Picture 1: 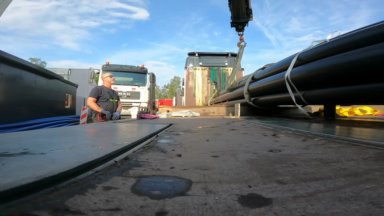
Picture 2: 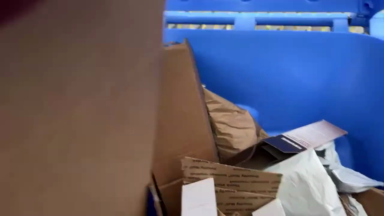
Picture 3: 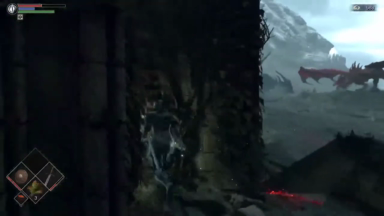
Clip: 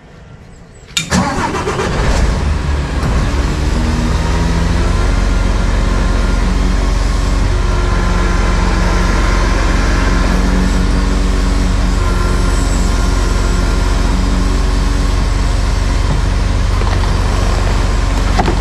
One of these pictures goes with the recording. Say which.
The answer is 1